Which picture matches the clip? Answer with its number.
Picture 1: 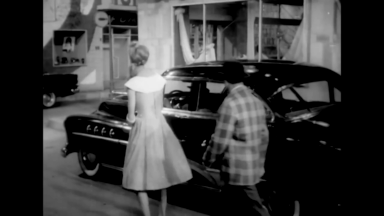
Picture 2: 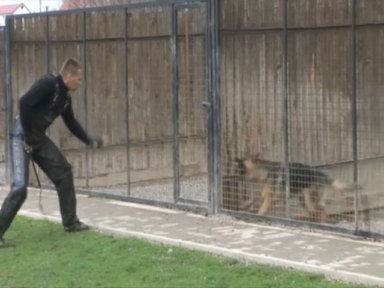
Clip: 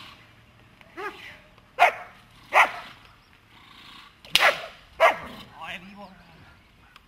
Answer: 2